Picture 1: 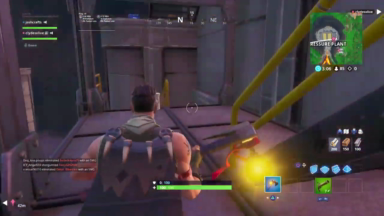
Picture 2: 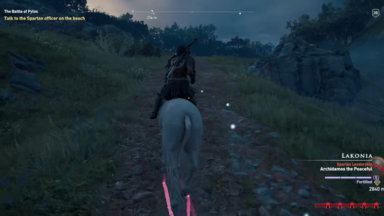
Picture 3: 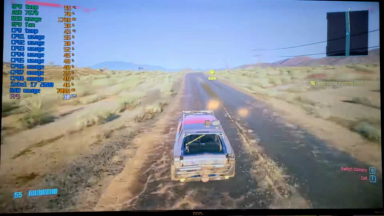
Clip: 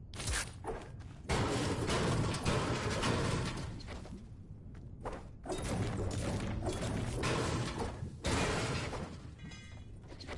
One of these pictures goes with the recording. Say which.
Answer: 1